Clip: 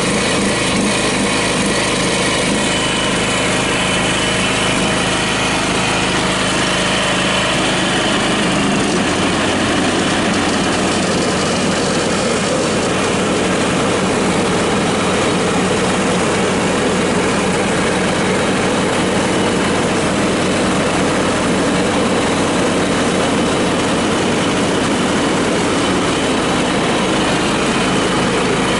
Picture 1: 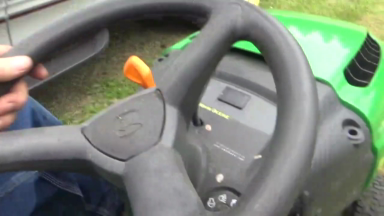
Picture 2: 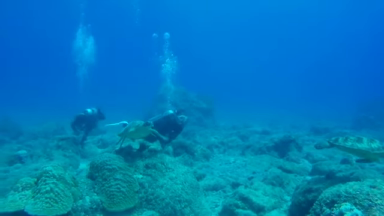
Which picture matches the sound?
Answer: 1